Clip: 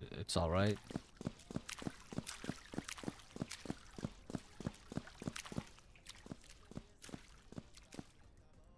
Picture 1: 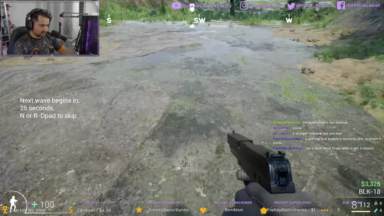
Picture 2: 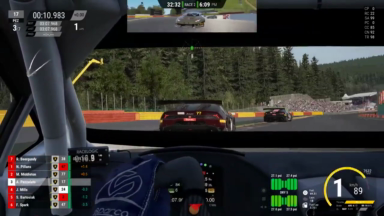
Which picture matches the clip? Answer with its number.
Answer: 1